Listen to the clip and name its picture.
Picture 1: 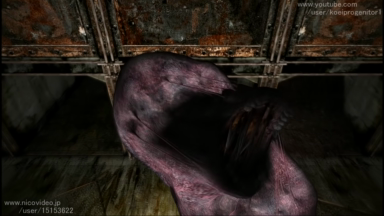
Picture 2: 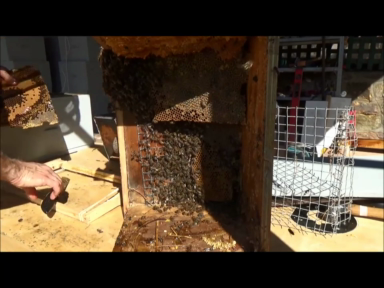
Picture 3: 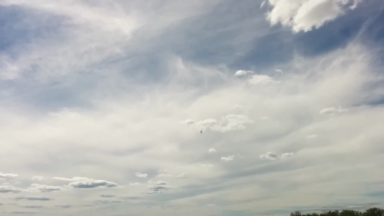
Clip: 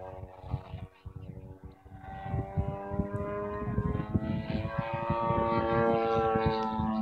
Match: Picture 3